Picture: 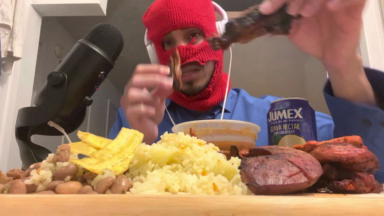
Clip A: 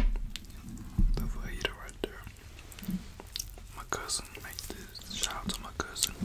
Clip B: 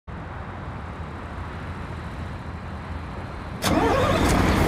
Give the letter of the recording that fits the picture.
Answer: A